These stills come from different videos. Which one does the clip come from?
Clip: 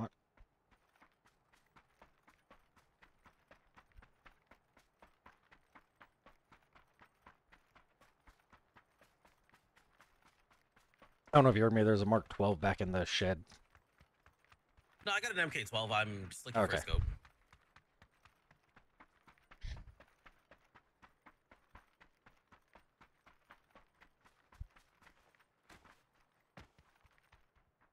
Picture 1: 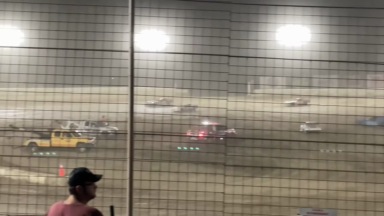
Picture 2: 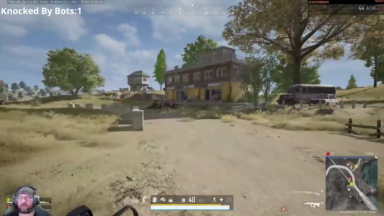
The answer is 2